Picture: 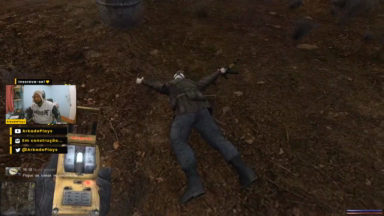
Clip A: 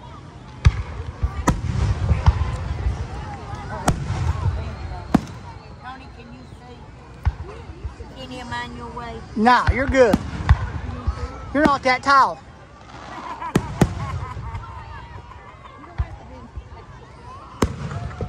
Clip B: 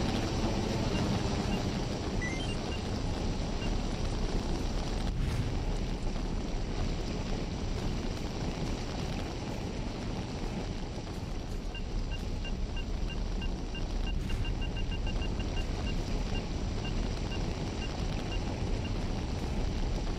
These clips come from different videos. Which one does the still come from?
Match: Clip B